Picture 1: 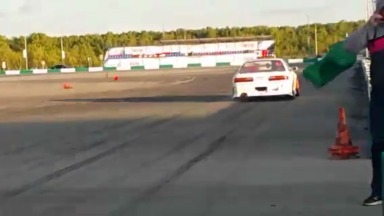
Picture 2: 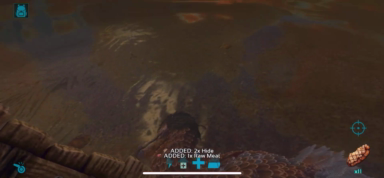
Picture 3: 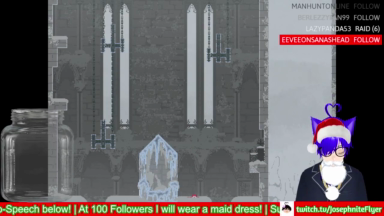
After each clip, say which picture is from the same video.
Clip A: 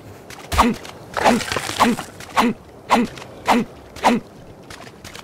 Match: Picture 2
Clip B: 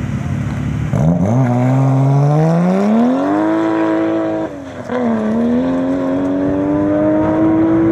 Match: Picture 1